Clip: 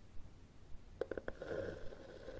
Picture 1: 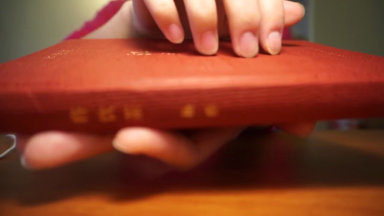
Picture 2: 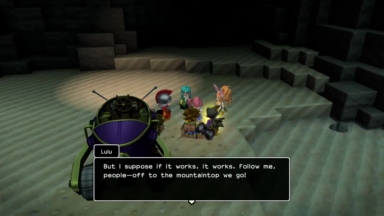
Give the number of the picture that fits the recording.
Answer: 1